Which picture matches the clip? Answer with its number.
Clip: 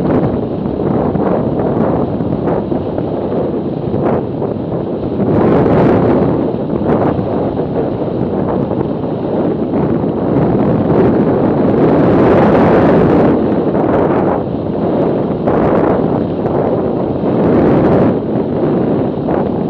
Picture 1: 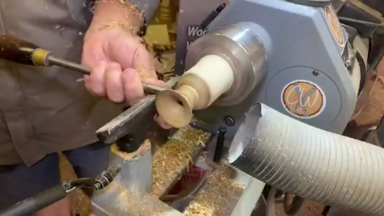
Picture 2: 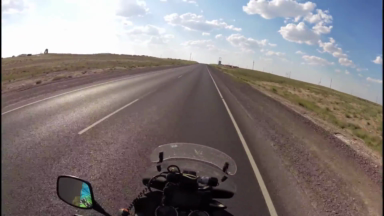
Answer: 2